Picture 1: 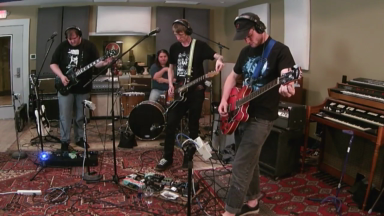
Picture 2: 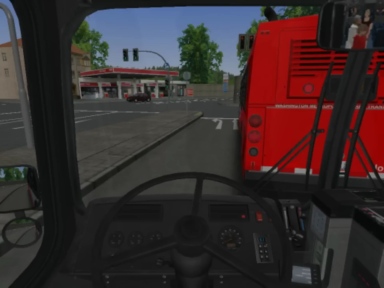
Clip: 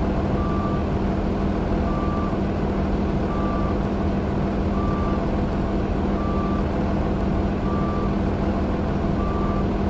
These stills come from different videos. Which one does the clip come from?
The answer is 2